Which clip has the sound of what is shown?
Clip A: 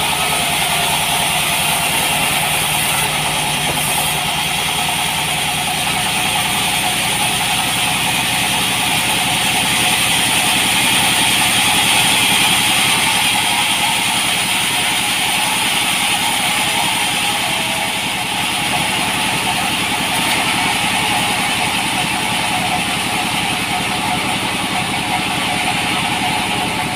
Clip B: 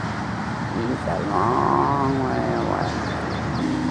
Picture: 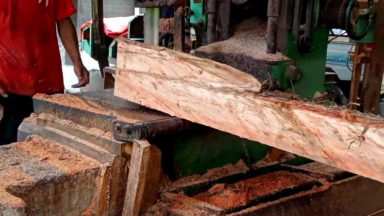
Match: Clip A